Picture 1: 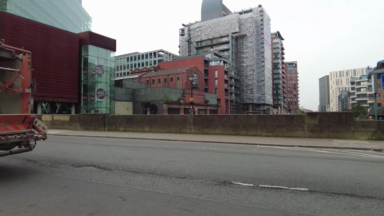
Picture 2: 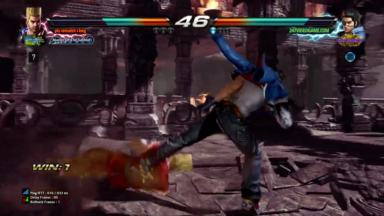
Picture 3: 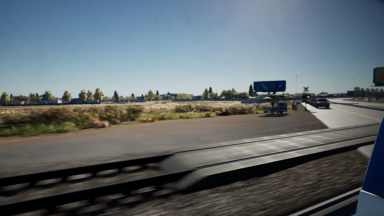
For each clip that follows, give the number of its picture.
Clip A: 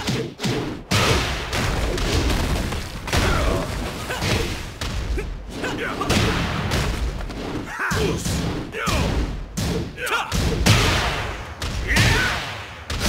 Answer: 2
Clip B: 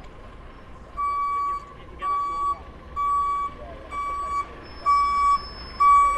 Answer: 1